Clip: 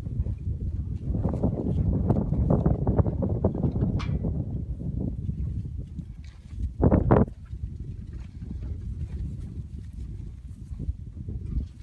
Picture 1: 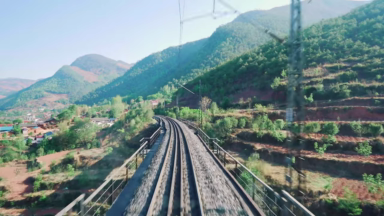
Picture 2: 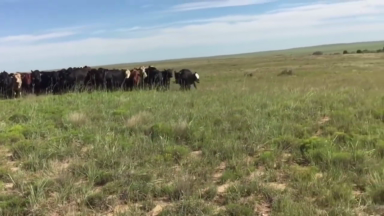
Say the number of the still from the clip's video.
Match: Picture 2